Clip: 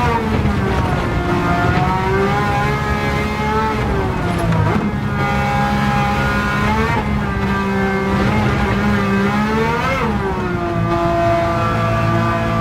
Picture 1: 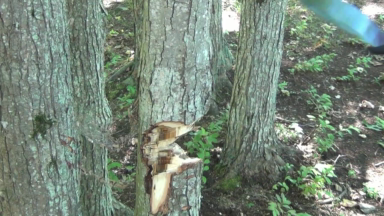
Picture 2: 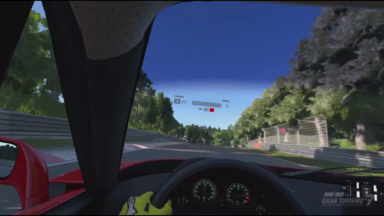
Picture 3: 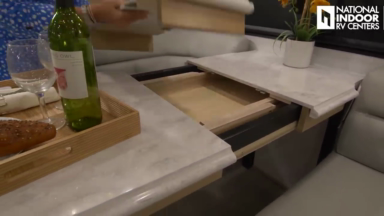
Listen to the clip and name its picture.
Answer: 2